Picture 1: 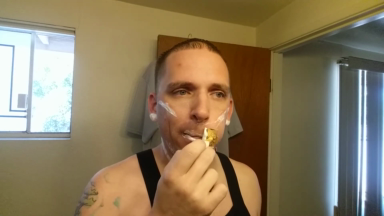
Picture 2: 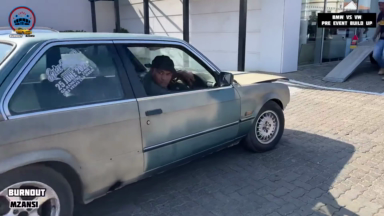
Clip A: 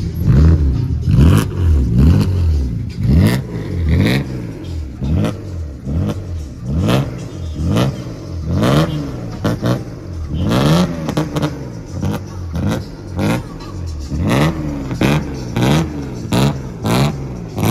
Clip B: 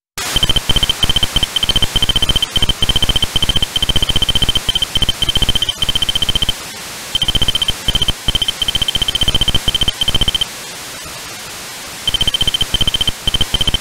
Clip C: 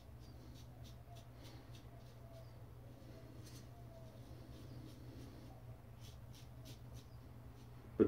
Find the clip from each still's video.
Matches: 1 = C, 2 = A